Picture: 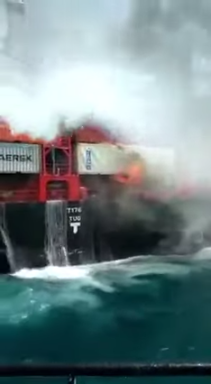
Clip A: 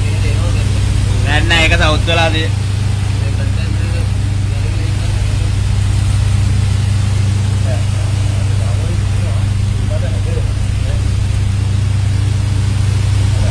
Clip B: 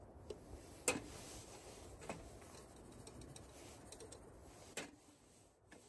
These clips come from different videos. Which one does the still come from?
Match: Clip A